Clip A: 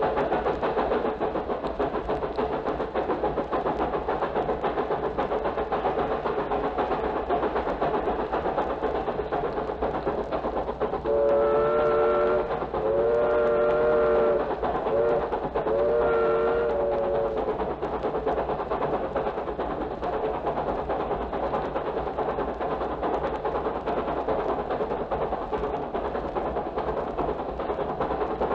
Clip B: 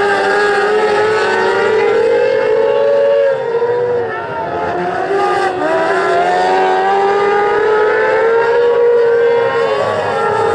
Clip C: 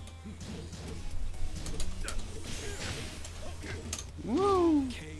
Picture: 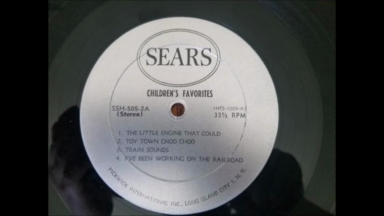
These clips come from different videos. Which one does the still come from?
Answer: A